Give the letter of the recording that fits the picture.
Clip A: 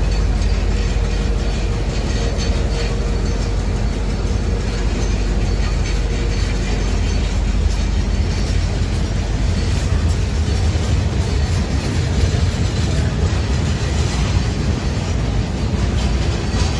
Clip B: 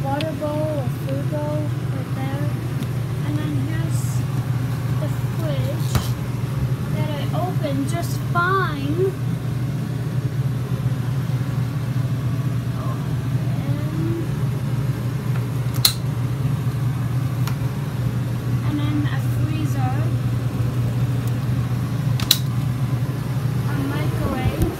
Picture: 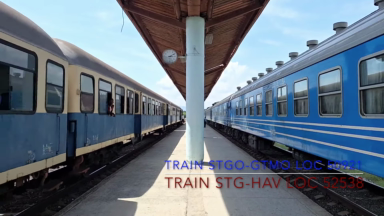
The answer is A